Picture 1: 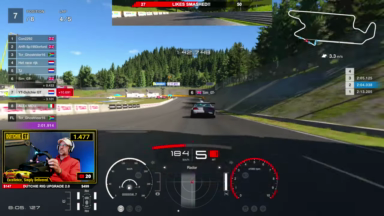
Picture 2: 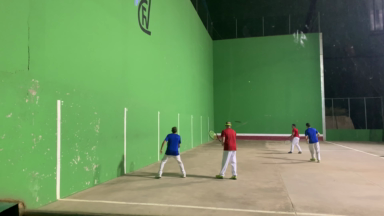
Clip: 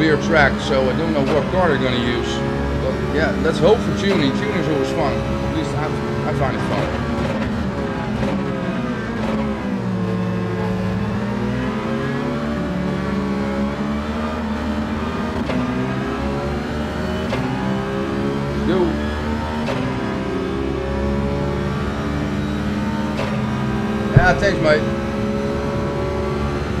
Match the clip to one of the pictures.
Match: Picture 1